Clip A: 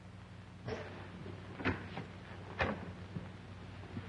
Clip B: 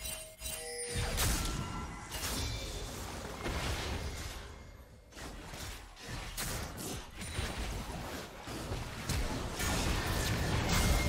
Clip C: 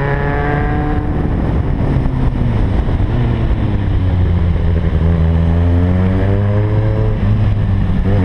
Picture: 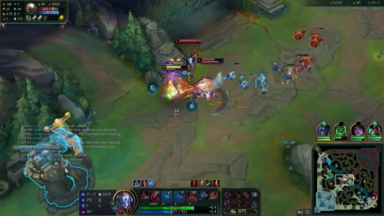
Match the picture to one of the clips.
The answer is B